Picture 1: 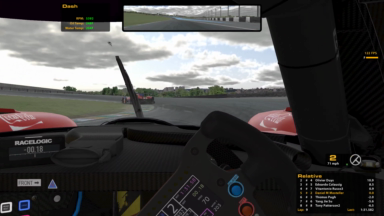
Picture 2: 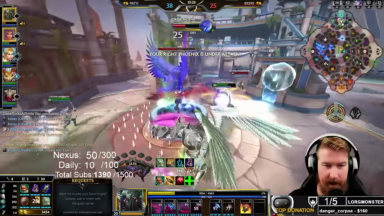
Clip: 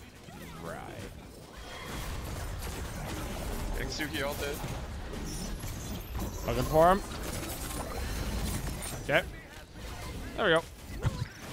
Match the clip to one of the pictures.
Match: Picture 2